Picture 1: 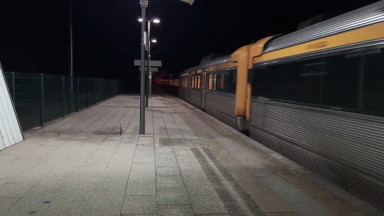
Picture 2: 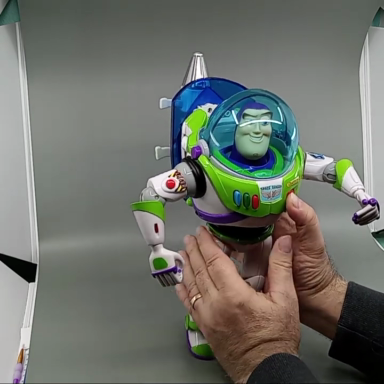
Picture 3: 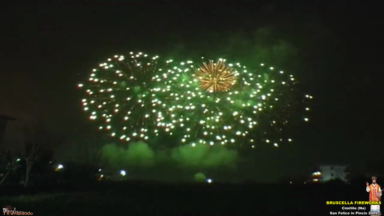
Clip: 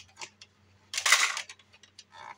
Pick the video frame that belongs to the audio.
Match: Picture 2